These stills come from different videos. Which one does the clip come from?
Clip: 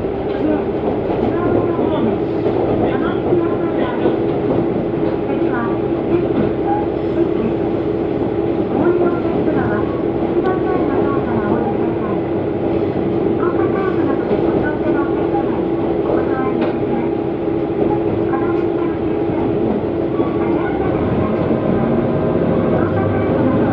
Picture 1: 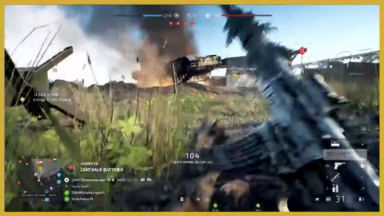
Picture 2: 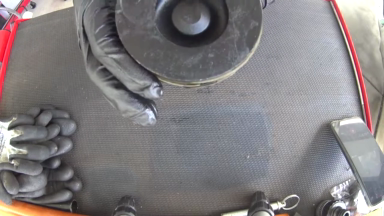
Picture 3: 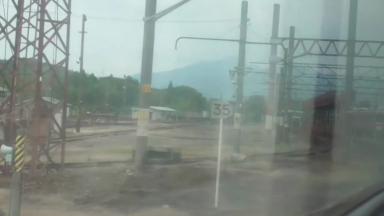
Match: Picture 3